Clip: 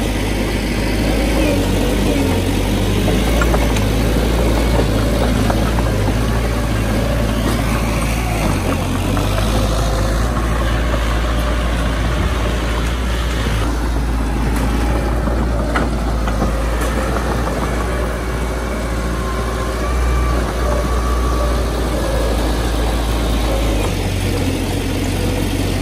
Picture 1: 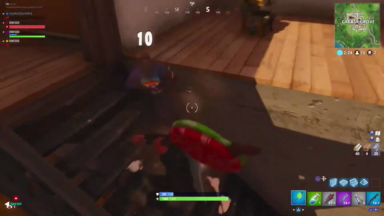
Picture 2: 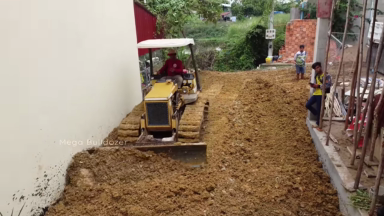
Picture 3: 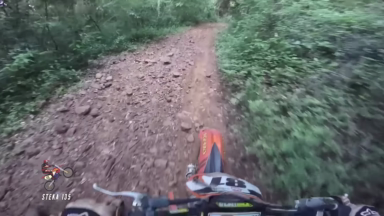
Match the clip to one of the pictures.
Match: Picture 2